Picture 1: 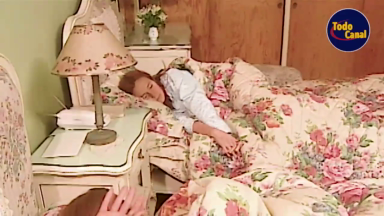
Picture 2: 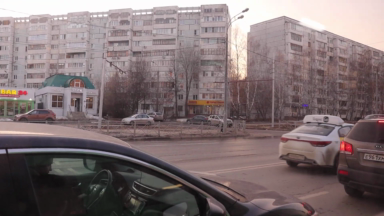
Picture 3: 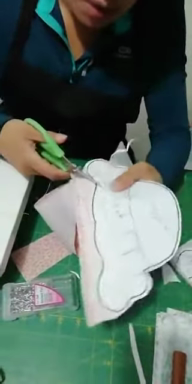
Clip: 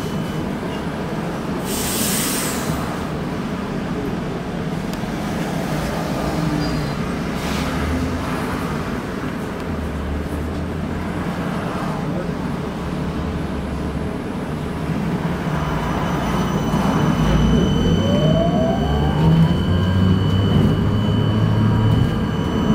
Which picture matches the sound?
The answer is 2